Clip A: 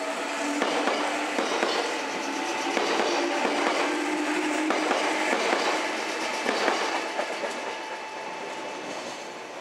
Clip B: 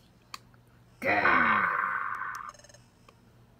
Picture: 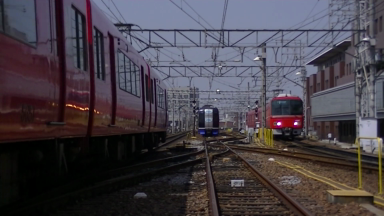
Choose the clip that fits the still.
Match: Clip A